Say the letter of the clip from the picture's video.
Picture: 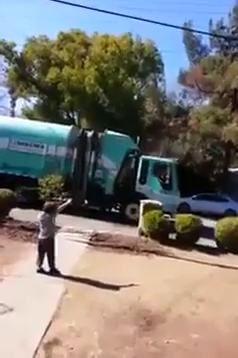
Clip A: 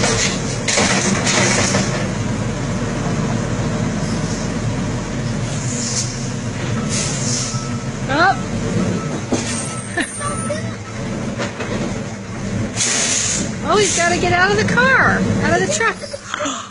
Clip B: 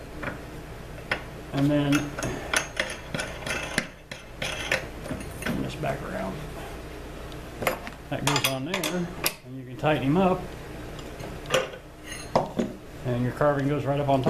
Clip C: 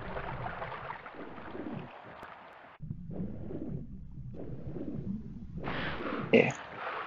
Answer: A